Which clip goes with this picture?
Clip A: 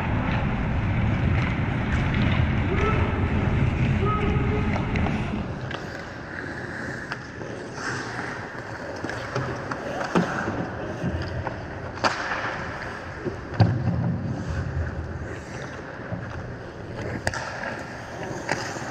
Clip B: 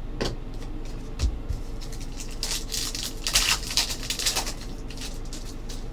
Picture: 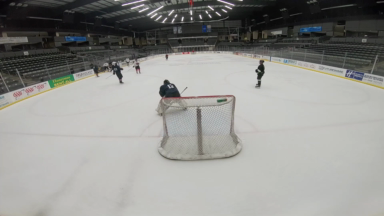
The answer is A